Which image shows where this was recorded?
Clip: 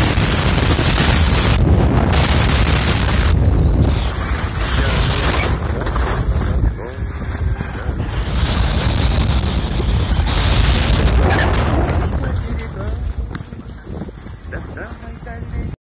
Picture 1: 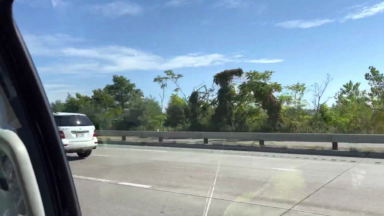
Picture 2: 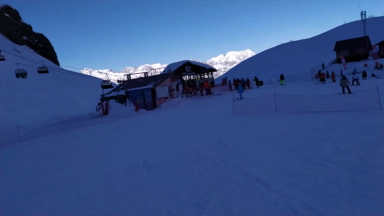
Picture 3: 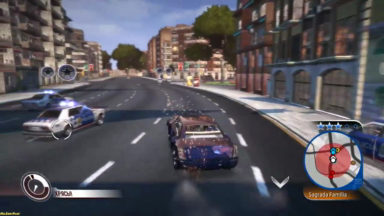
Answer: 2